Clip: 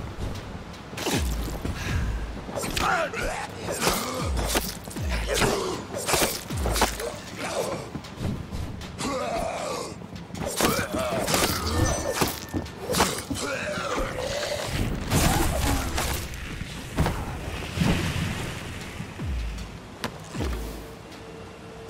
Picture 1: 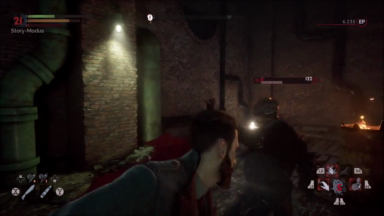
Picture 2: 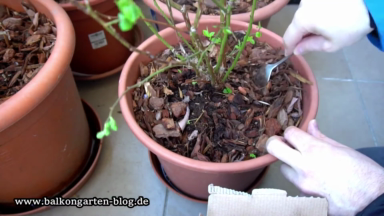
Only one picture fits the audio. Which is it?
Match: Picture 1